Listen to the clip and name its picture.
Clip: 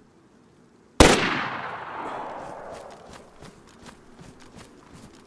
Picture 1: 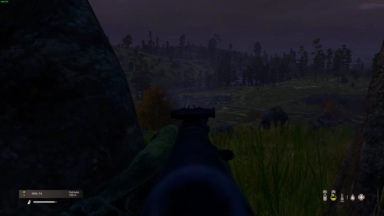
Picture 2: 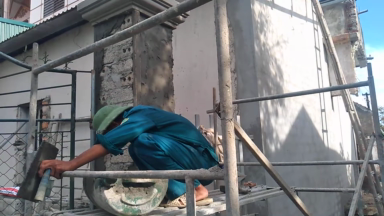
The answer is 1